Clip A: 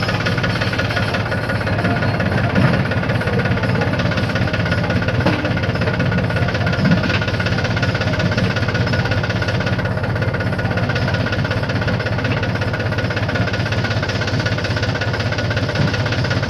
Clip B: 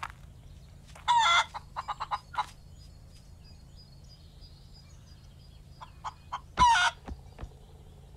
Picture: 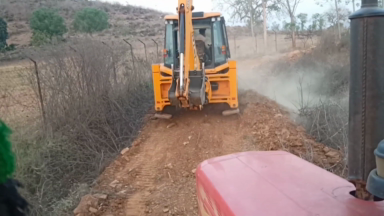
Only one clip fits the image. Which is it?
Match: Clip A